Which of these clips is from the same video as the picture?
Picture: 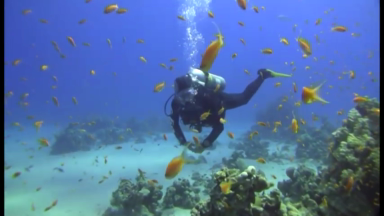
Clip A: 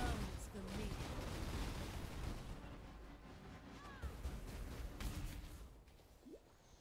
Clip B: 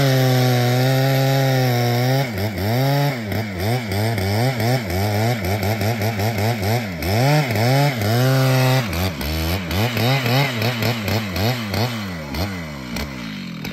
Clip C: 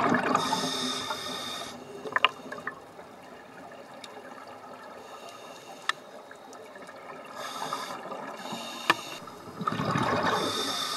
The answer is C